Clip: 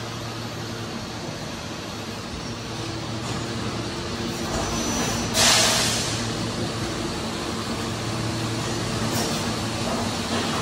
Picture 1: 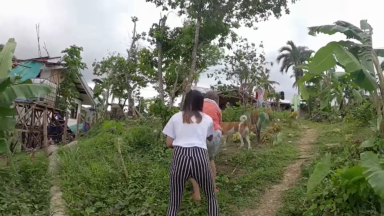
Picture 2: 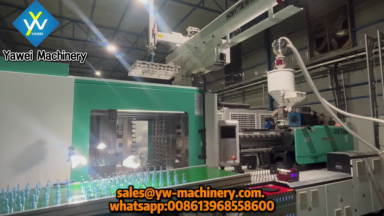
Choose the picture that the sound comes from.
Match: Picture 2